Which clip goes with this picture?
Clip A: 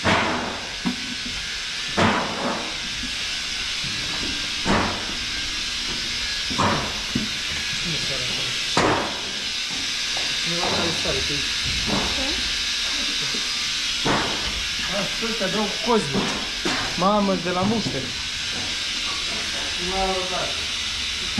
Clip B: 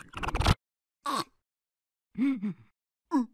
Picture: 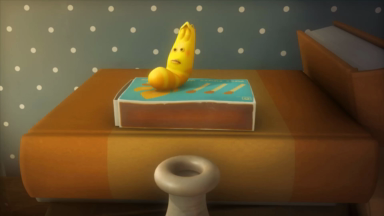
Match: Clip B